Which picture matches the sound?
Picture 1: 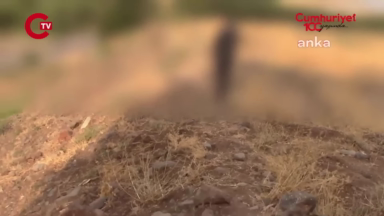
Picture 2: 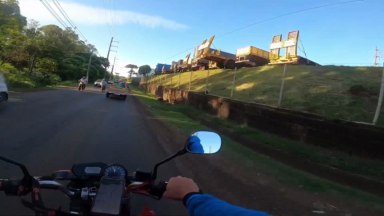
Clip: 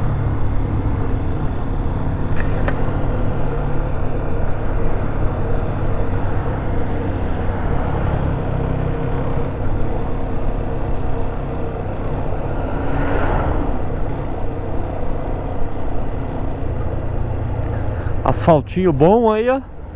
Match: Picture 2